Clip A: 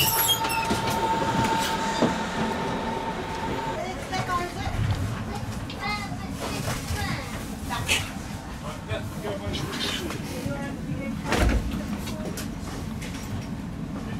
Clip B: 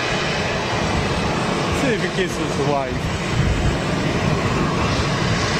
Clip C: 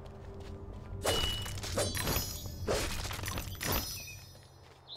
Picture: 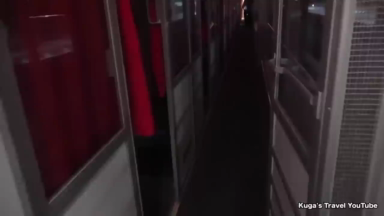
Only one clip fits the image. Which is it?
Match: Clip A